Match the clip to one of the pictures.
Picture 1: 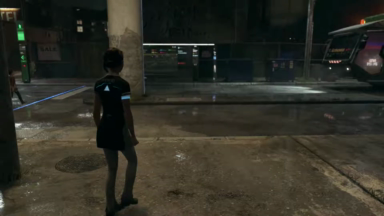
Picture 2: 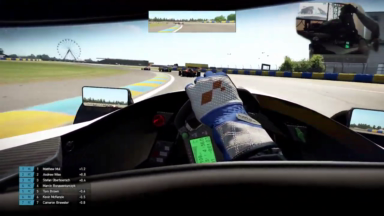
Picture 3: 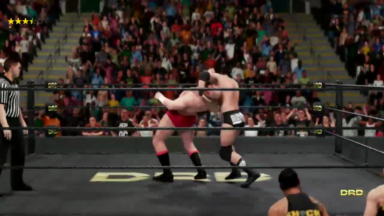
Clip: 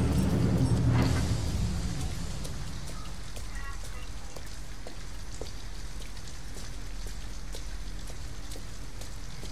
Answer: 1